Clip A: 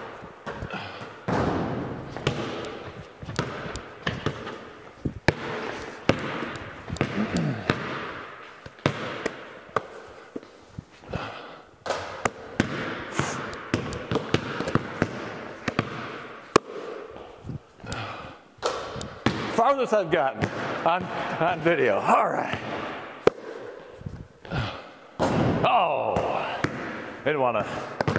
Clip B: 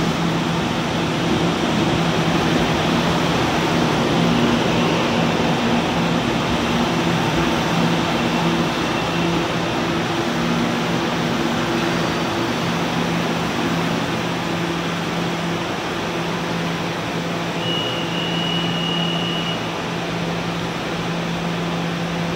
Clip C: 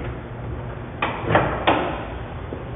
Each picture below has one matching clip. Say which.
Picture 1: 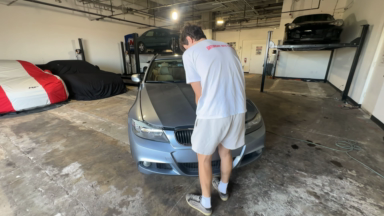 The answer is C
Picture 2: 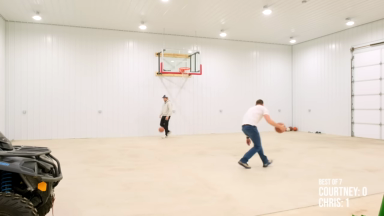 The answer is A